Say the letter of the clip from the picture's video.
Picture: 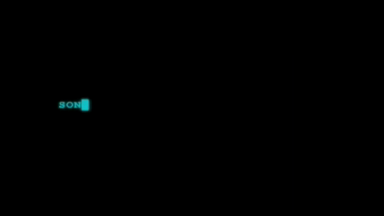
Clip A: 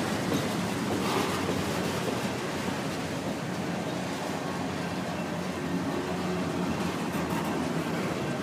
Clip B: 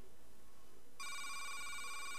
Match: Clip B